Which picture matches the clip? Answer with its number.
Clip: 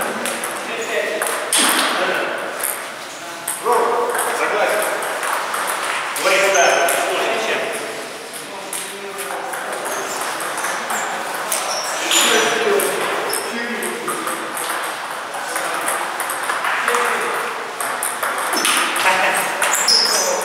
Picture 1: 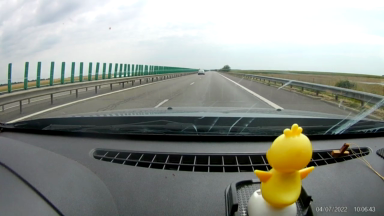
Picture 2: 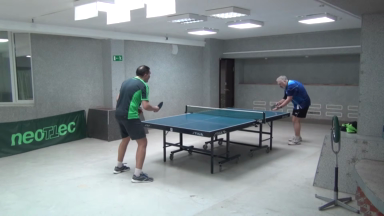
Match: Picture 2